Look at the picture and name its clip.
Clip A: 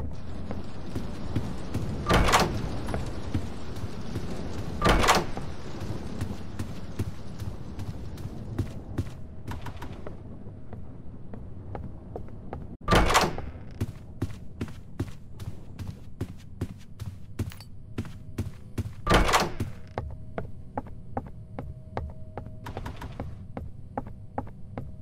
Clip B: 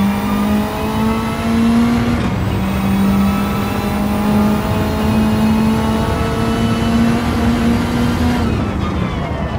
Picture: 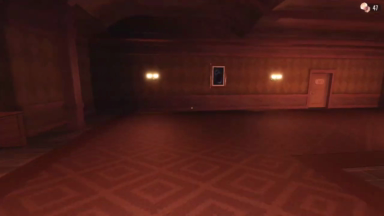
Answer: A